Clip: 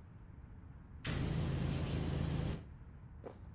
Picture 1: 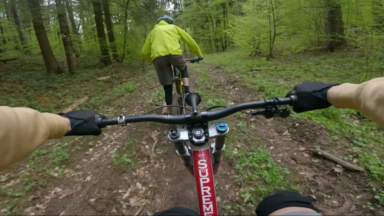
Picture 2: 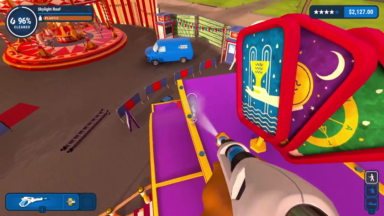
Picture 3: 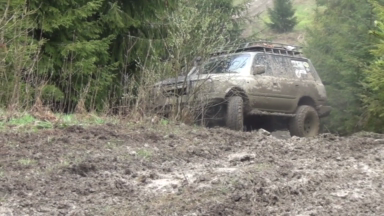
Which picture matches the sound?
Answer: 2